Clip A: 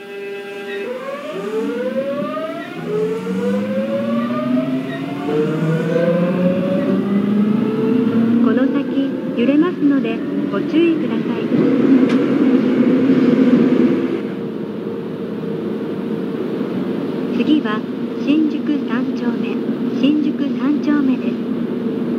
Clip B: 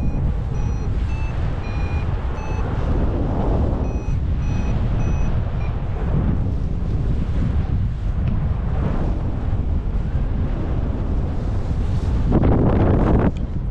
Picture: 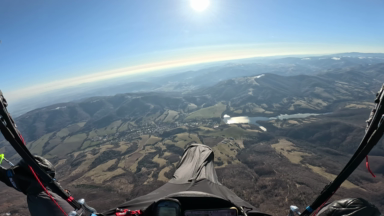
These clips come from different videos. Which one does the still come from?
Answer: B